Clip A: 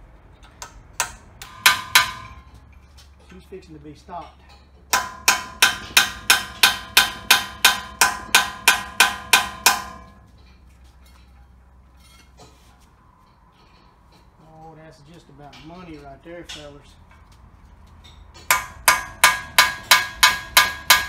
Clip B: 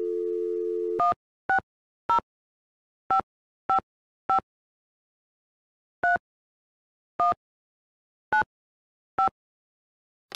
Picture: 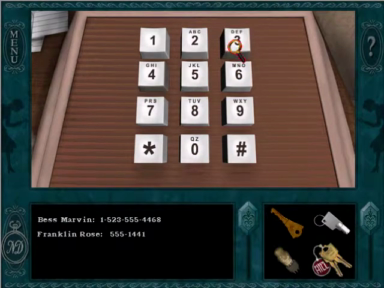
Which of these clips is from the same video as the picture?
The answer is B